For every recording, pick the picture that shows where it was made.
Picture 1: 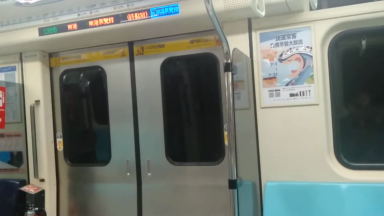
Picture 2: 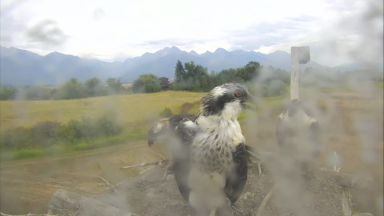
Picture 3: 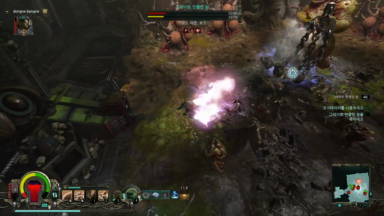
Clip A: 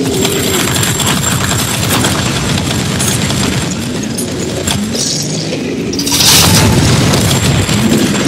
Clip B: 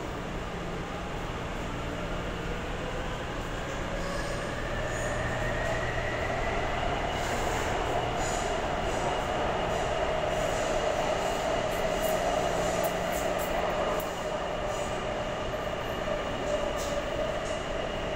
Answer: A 3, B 1